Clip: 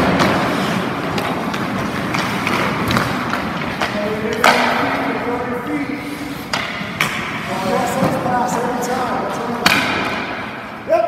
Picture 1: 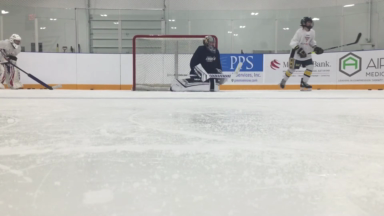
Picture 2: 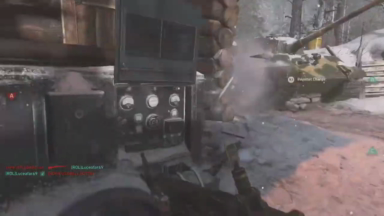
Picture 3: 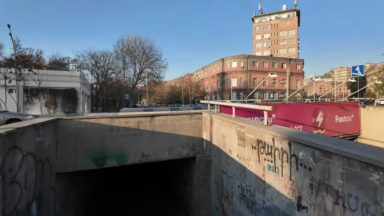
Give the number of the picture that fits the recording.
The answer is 1